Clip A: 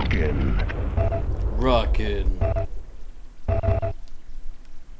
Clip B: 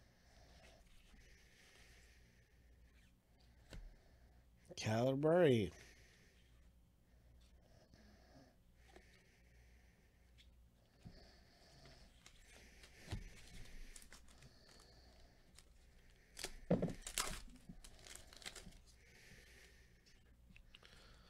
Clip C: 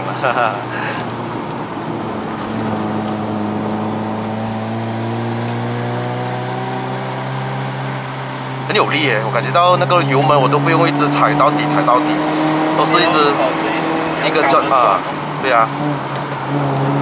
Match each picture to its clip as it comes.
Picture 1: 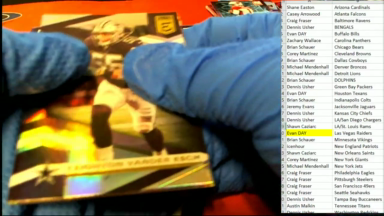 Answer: B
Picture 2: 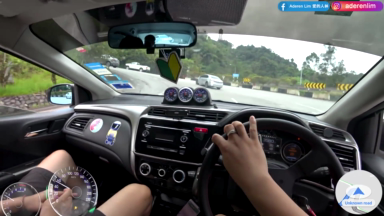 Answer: C